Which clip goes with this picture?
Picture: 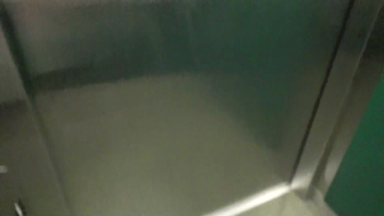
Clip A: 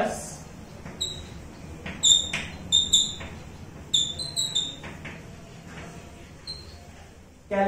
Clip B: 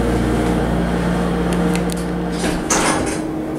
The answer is B